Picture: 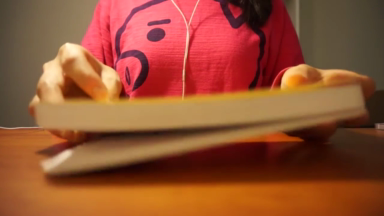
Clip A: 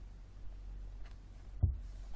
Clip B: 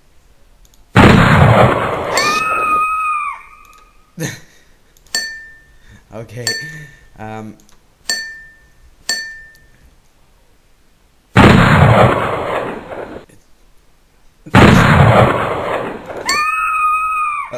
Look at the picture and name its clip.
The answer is A